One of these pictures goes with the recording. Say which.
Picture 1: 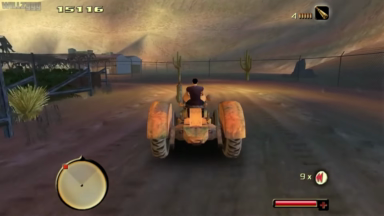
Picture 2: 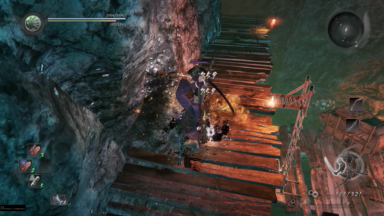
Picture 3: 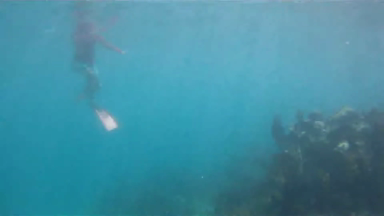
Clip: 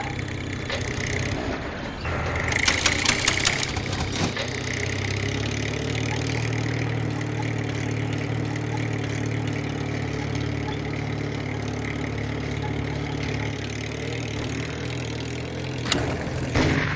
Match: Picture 1